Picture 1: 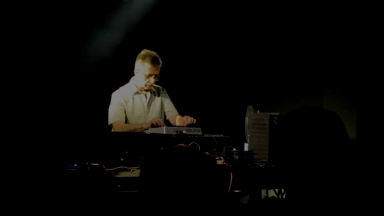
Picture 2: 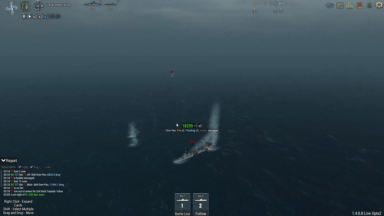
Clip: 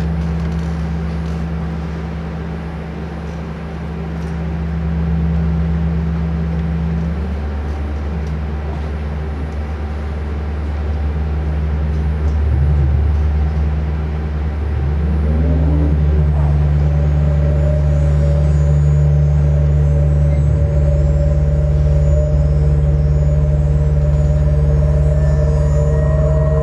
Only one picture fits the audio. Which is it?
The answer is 1